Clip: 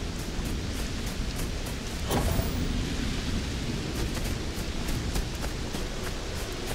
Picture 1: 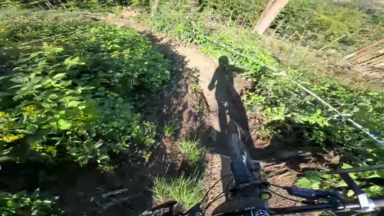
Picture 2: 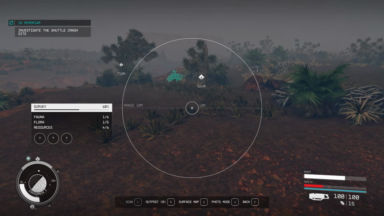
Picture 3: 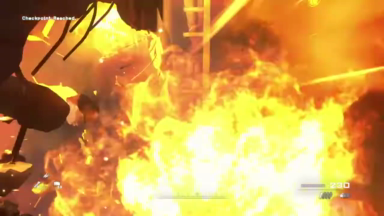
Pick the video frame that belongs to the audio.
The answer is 2